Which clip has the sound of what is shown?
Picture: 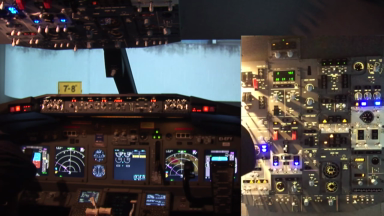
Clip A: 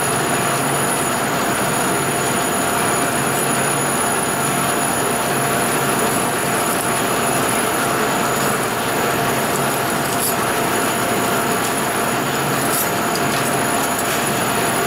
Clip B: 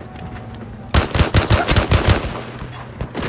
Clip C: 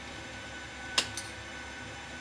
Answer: C